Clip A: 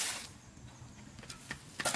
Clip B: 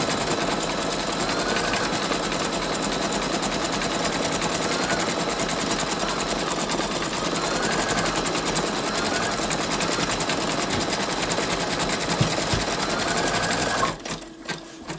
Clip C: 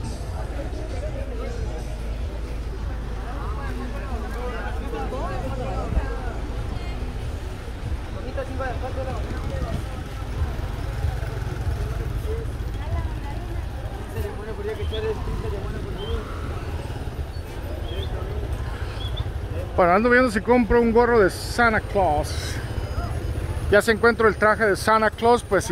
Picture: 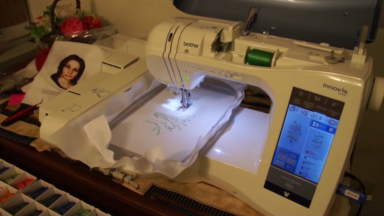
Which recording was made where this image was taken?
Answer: B